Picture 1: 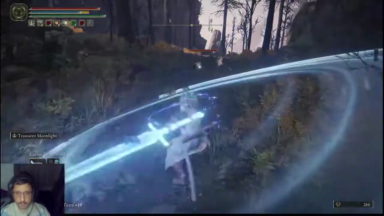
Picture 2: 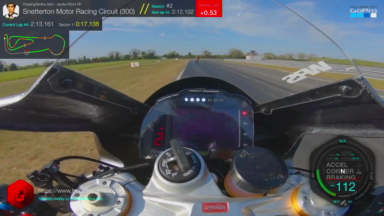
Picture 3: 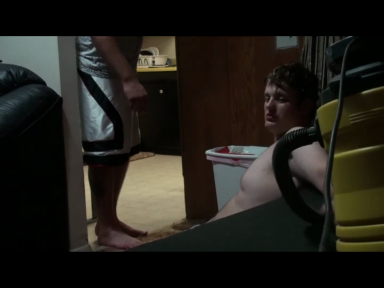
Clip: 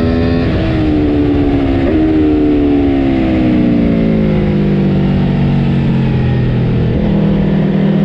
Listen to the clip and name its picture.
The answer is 2